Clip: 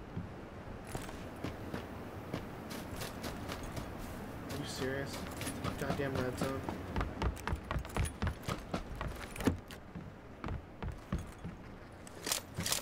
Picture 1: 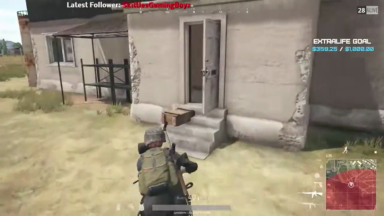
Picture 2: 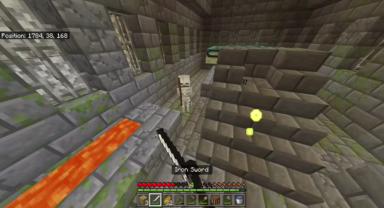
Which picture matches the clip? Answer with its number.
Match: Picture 1